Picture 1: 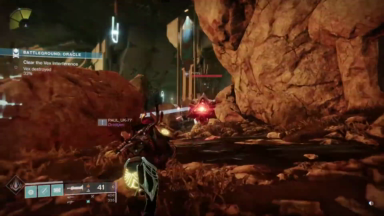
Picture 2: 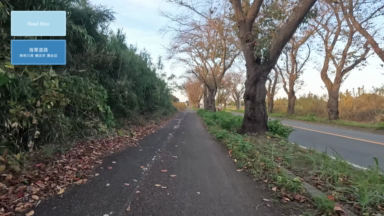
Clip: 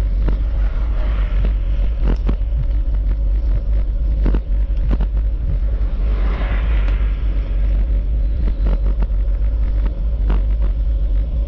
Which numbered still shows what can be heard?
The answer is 2